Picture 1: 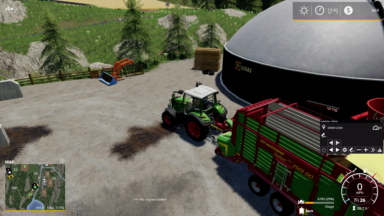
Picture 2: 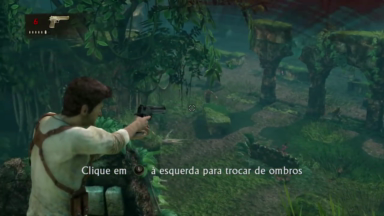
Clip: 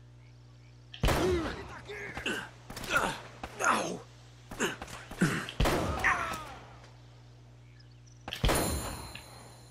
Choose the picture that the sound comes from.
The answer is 2